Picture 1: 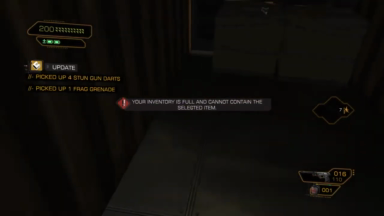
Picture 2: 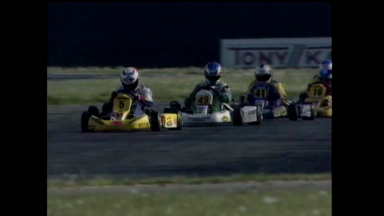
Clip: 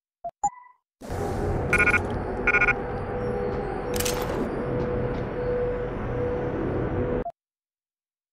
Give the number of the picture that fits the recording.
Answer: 1